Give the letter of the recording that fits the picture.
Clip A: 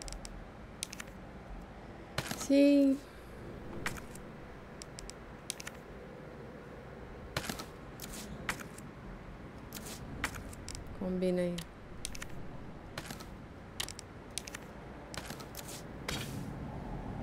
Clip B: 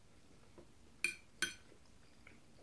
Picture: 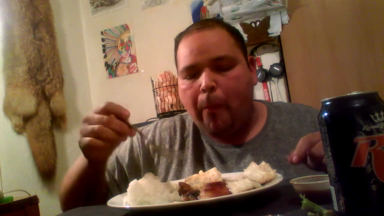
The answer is B